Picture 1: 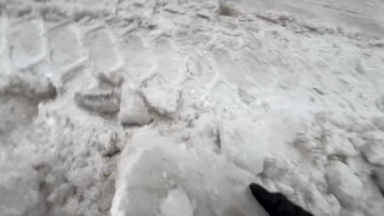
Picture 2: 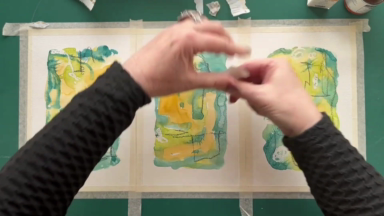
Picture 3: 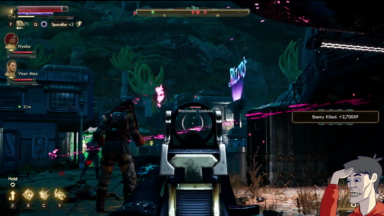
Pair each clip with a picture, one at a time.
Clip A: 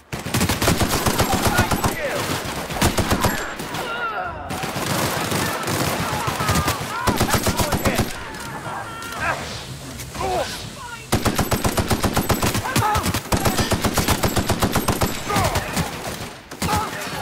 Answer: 3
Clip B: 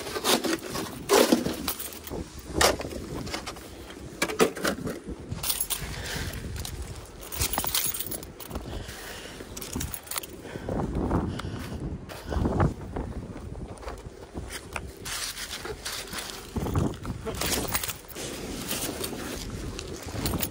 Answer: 1